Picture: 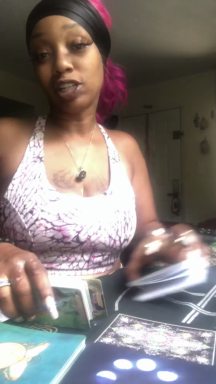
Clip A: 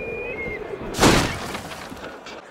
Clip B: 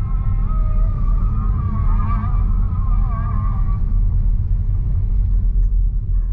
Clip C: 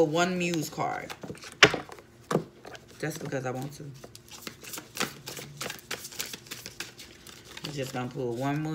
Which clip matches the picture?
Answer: C